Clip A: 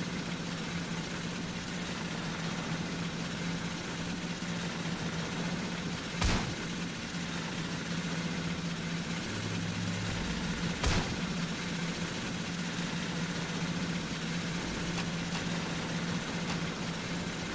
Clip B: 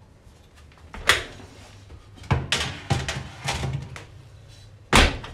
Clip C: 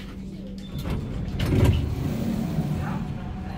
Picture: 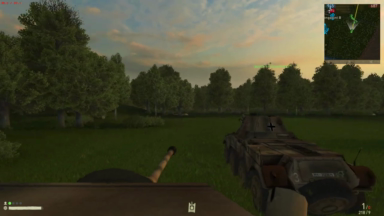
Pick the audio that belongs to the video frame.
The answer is A